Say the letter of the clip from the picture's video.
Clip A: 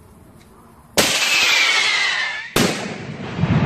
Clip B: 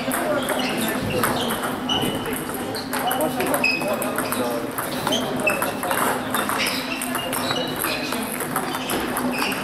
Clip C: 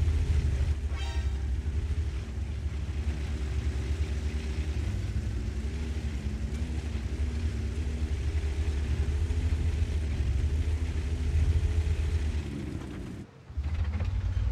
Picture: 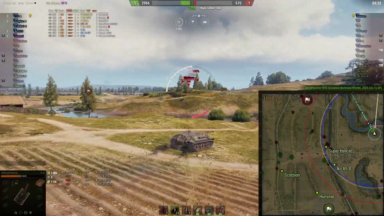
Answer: C